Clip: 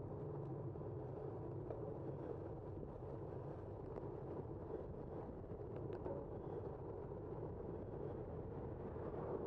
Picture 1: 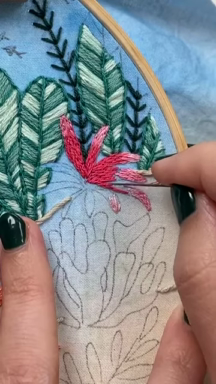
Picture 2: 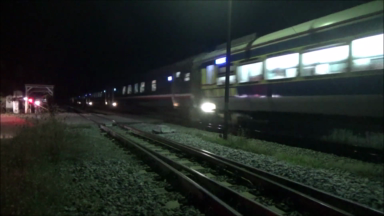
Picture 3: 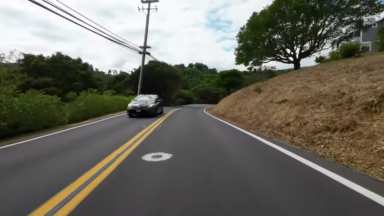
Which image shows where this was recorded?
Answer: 3